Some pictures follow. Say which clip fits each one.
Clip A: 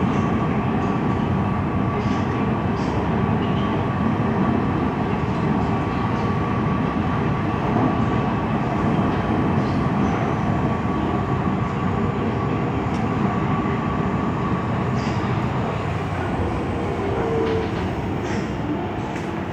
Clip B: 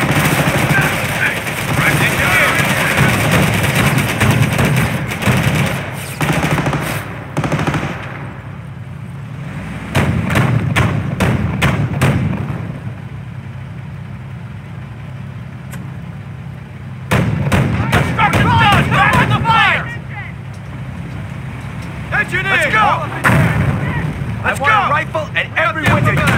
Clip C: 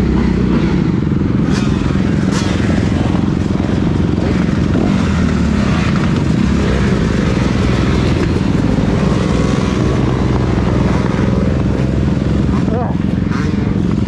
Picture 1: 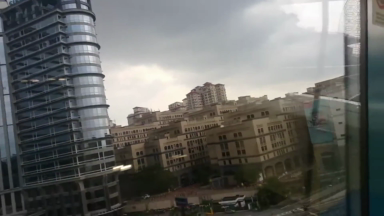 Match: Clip A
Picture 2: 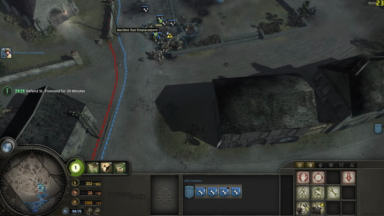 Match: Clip B